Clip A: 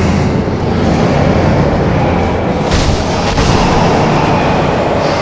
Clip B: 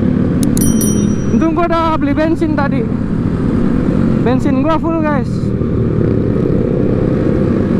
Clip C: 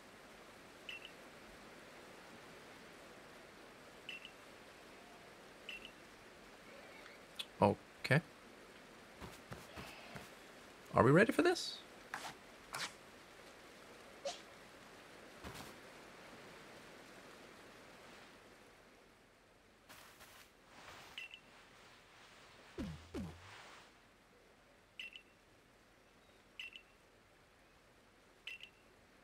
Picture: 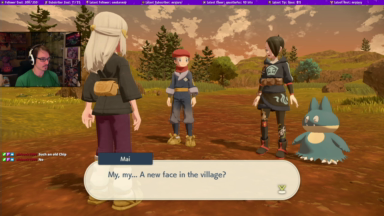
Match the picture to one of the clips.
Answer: C